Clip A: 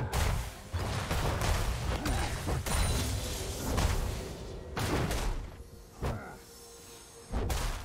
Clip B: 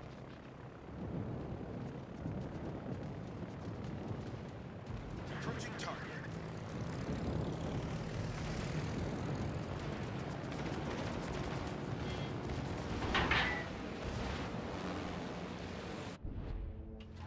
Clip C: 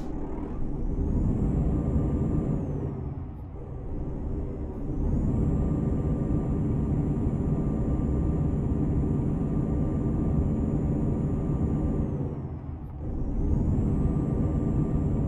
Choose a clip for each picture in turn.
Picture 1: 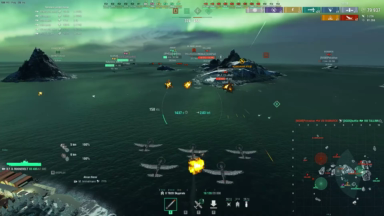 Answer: B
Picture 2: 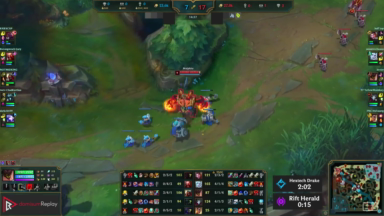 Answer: A